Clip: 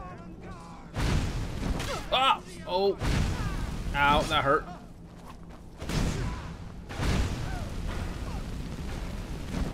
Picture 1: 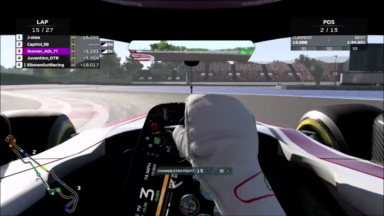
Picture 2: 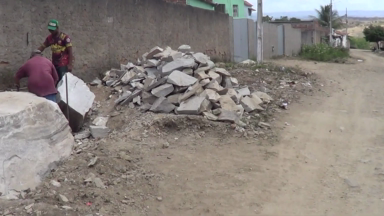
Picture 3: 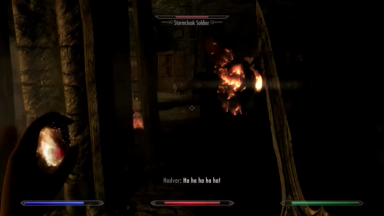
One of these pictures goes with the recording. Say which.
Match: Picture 3